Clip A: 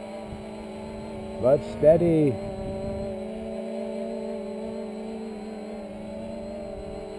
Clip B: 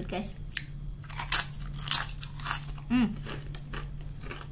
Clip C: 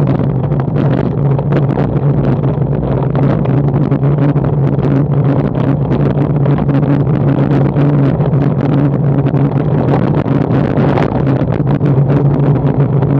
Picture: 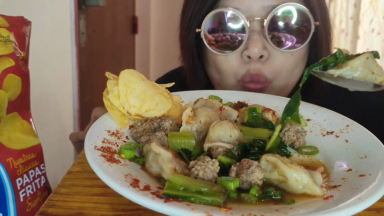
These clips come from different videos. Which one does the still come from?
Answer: B